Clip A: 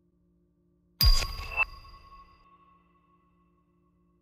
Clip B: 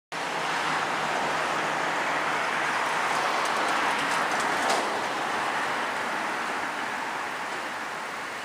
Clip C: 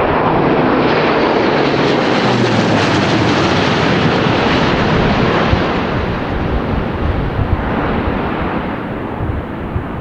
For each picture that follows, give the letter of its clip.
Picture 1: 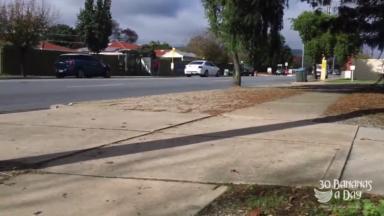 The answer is B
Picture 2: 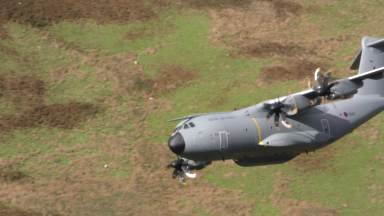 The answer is C